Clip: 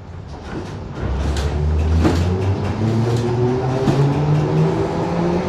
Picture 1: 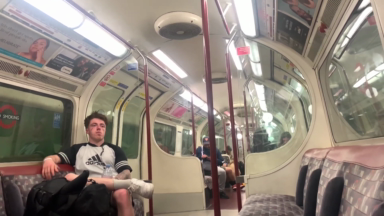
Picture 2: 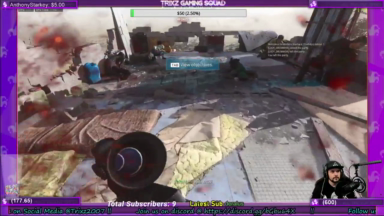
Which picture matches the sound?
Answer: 1